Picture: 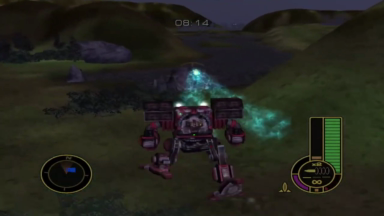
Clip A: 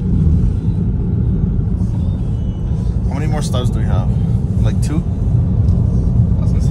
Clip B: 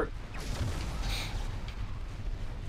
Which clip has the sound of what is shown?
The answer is B